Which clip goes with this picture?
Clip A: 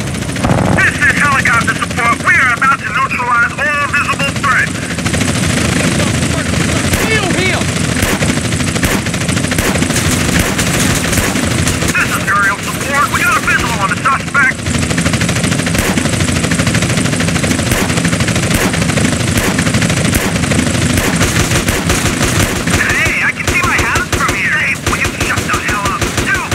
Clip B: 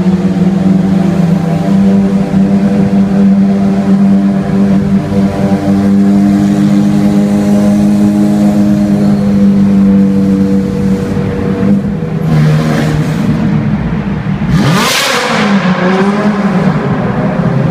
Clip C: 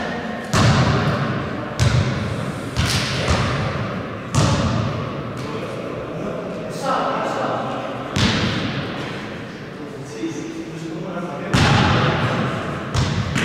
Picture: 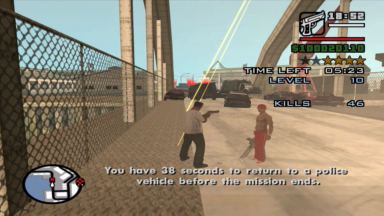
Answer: A